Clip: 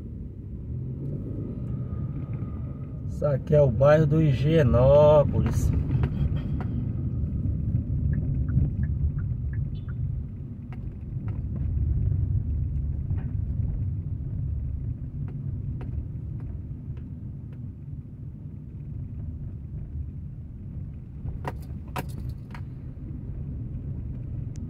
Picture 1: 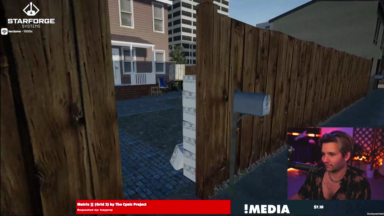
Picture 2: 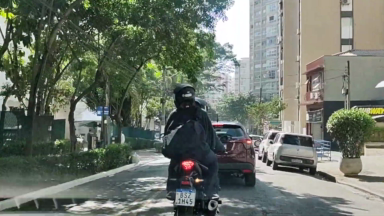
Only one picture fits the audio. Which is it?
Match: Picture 2